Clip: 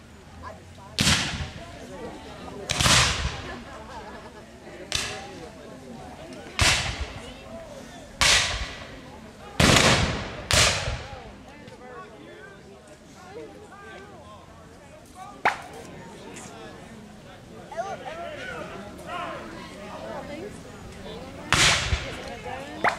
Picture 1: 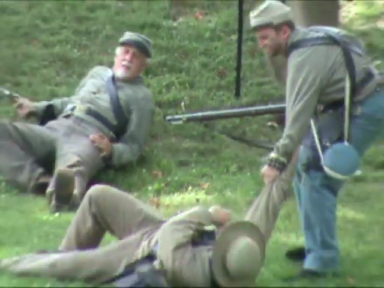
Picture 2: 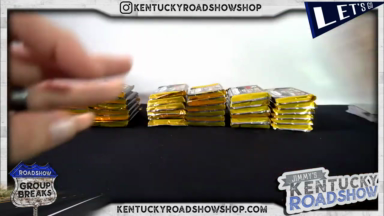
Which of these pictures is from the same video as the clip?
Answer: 1